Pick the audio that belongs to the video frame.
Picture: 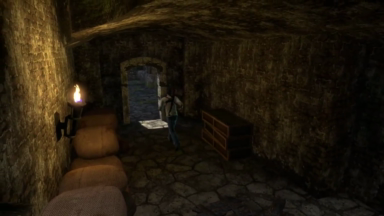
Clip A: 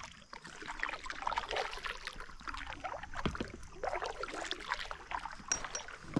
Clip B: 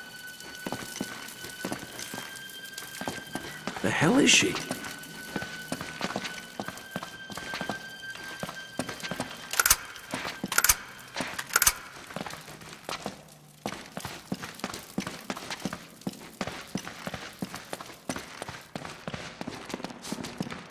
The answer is B